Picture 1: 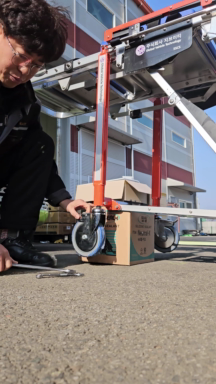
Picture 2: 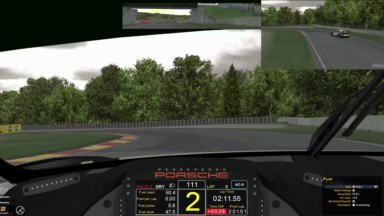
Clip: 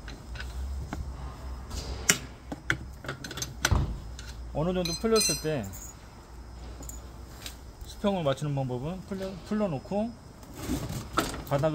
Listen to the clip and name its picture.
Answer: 1